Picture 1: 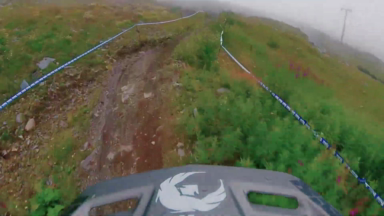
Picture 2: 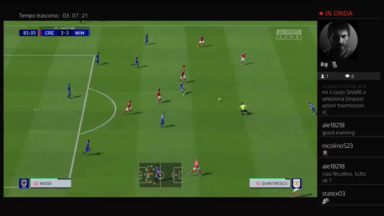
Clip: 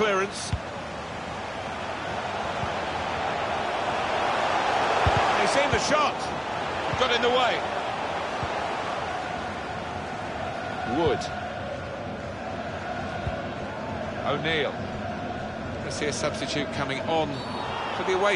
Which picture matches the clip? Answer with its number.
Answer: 2